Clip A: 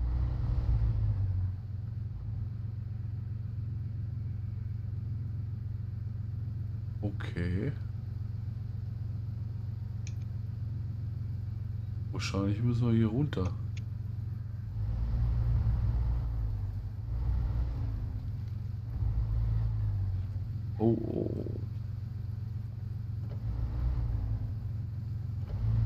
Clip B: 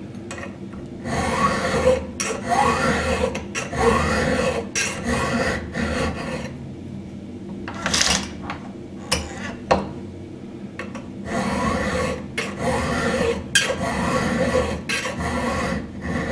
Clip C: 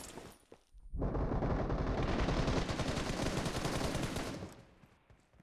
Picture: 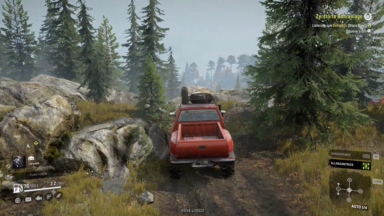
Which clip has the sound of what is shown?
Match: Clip A